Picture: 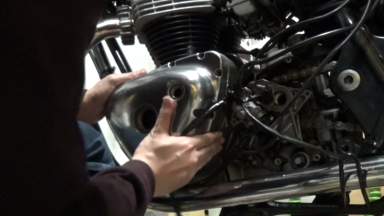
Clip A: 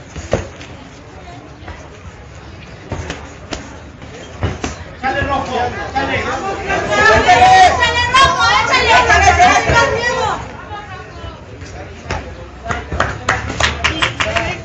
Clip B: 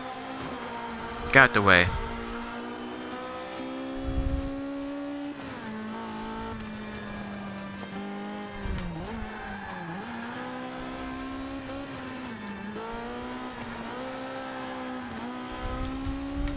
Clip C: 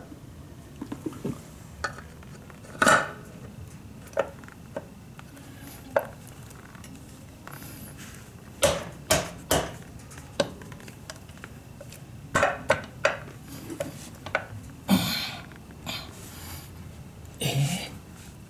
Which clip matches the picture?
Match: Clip C